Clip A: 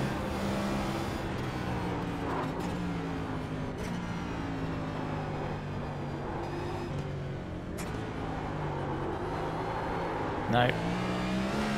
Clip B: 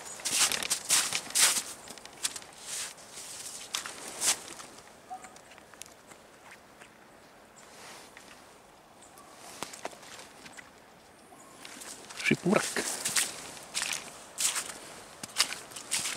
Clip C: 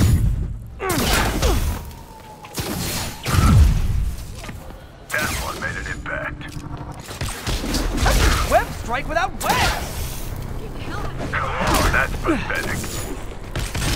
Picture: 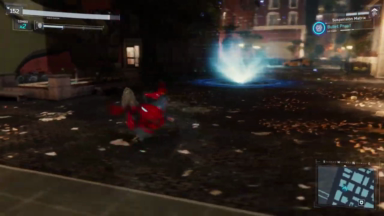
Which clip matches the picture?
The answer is C